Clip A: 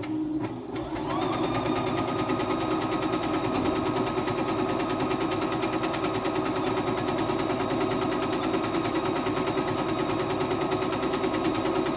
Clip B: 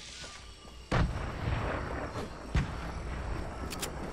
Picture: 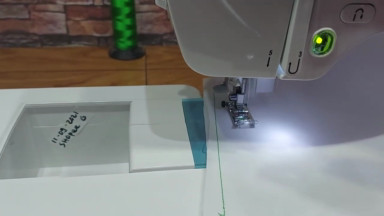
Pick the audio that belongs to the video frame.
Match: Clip A